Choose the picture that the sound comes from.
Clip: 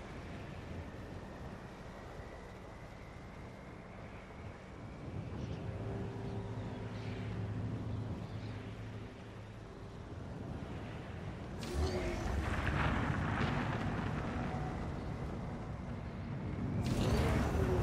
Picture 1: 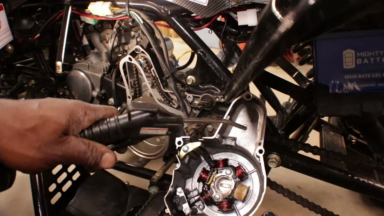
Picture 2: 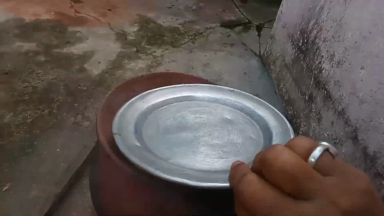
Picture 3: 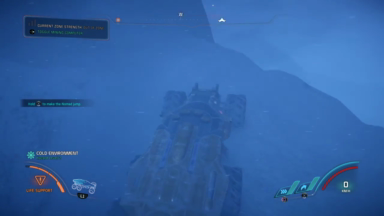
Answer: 3